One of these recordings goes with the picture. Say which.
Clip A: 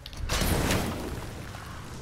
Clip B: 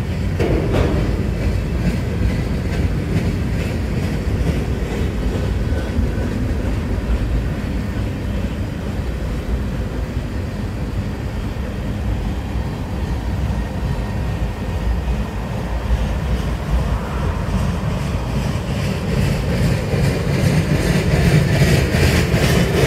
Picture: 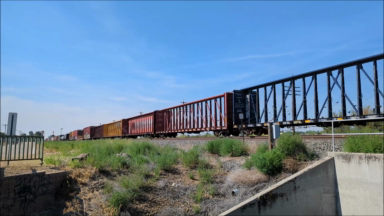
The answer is B